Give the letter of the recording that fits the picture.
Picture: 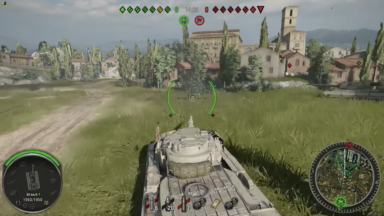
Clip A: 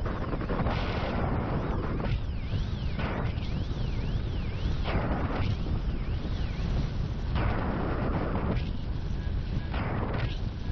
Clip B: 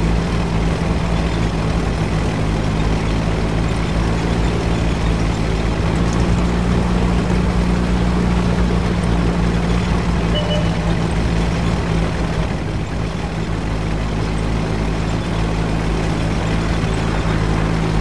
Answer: B